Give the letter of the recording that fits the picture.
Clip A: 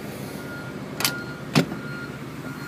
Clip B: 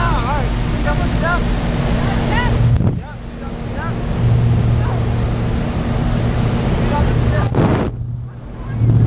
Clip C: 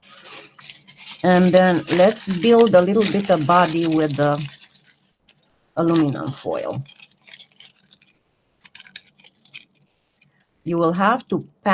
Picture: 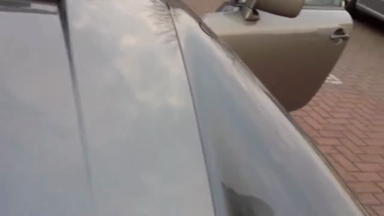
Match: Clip A